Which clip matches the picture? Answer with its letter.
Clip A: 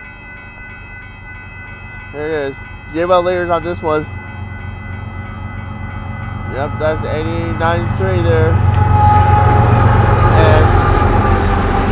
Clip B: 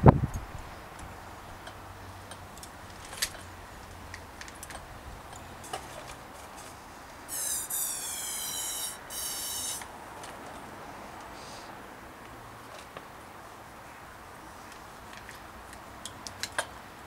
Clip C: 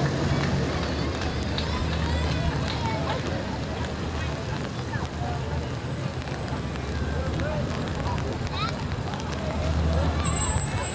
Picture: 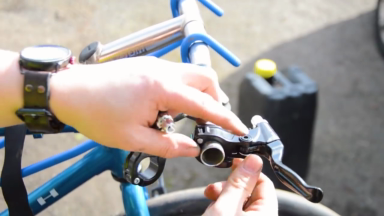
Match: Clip B